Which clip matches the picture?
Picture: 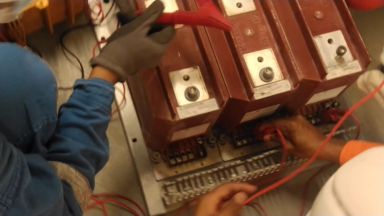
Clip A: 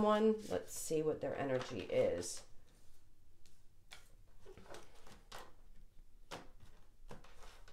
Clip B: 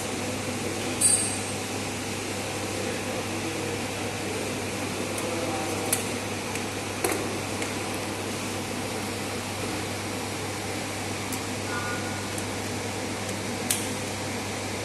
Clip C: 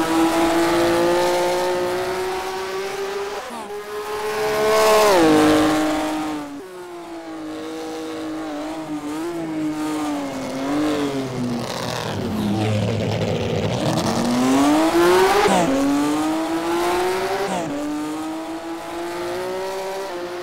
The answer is B